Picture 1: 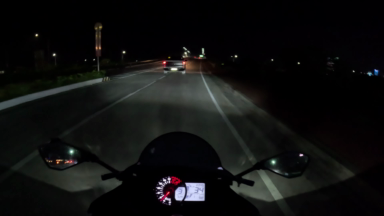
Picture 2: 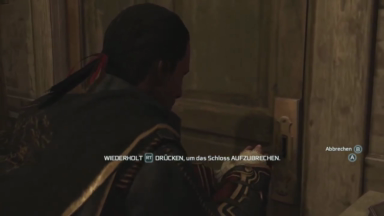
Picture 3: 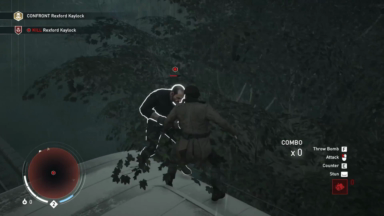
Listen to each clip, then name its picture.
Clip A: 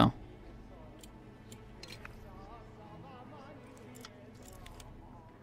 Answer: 2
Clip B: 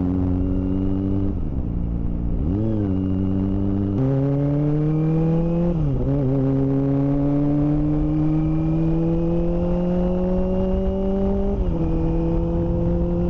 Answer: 1